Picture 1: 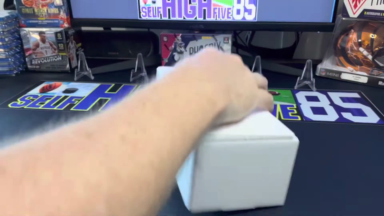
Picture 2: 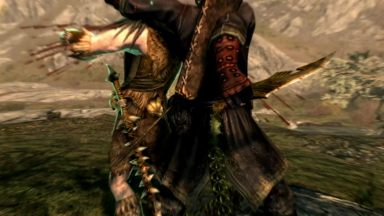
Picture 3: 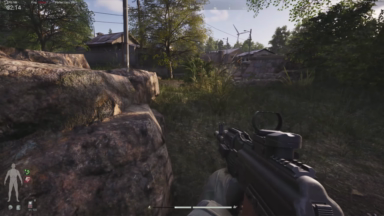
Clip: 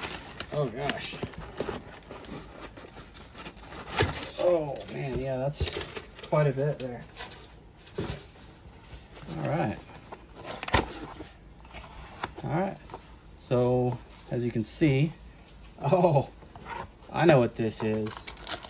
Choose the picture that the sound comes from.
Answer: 1